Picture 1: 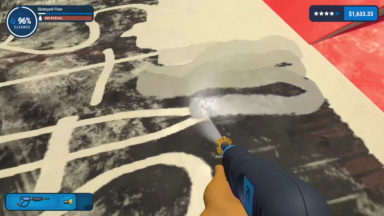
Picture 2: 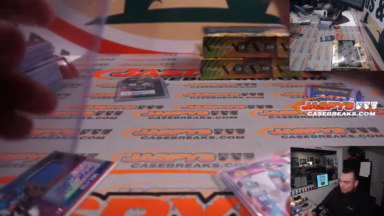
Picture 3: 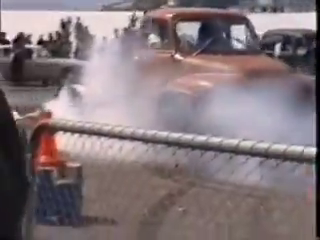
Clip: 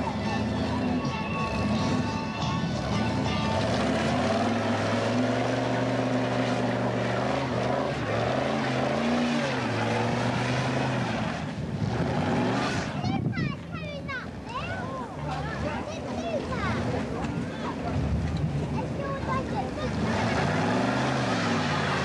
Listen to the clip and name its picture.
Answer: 3